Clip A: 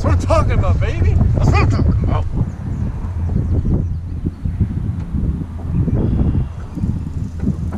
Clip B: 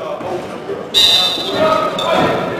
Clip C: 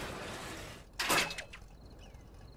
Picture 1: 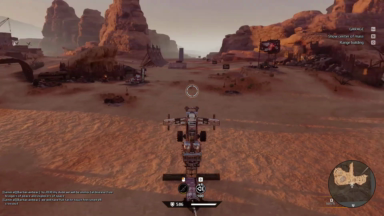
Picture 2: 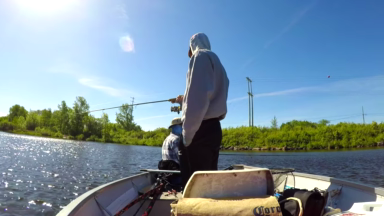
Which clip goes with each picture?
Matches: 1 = C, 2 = A